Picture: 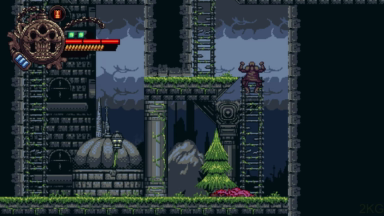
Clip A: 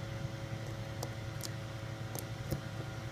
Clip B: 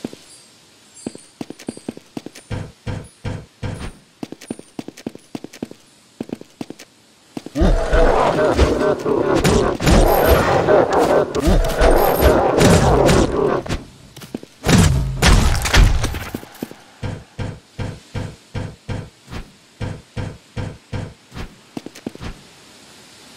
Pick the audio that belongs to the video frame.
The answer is B